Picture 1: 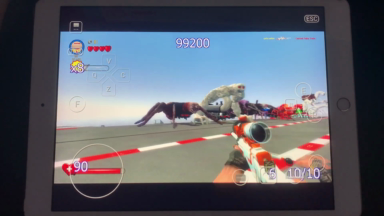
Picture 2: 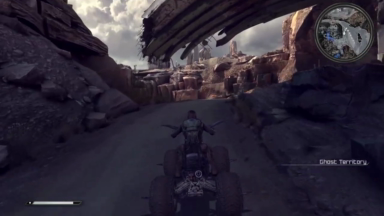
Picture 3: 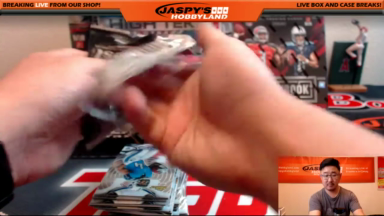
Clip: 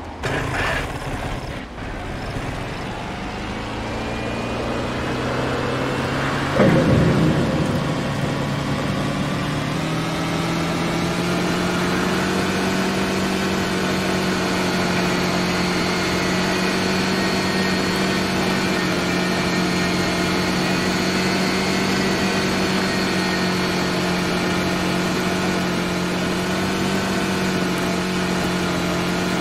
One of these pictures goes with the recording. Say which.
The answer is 2